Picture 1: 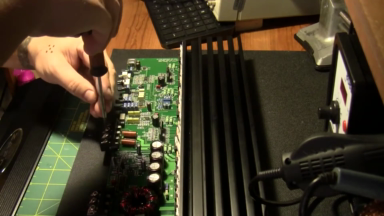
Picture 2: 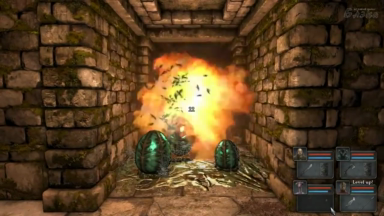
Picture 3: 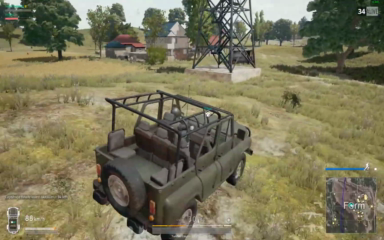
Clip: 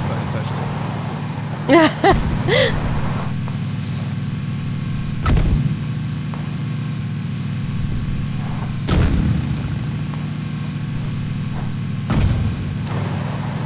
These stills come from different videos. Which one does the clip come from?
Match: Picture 3